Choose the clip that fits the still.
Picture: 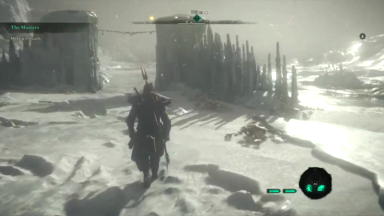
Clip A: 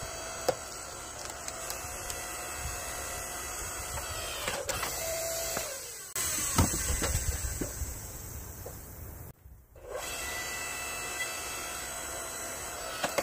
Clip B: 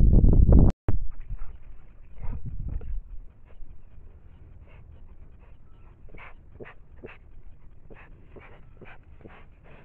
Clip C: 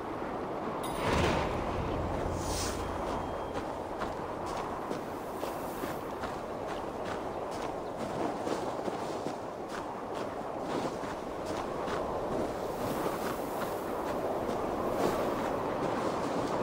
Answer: C